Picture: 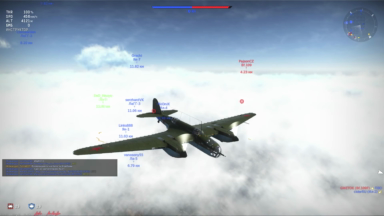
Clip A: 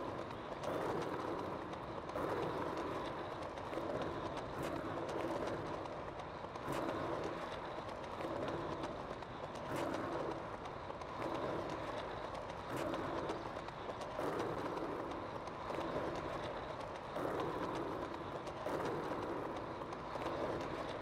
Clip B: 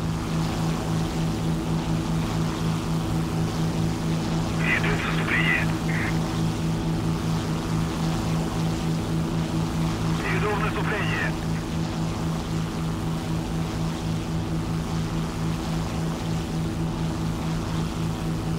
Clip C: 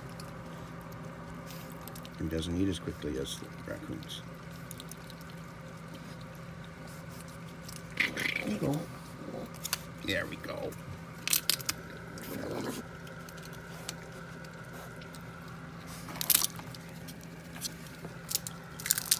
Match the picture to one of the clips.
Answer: B